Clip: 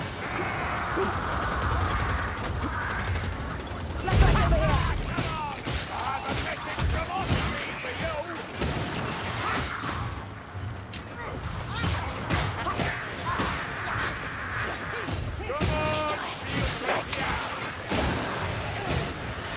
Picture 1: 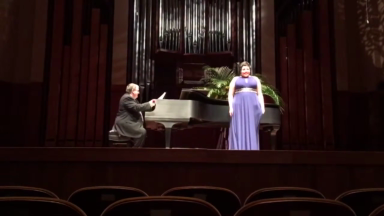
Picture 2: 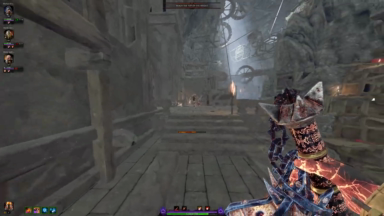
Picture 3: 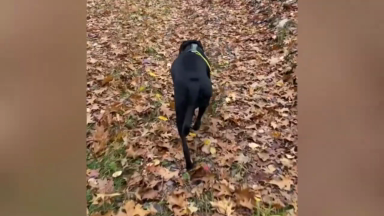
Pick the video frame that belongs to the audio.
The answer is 2